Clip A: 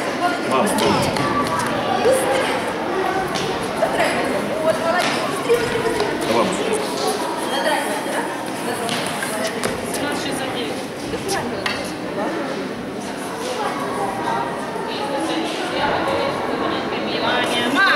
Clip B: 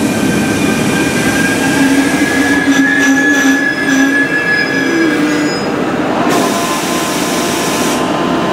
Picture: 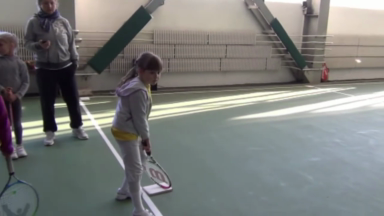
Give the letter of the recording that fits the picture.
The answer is A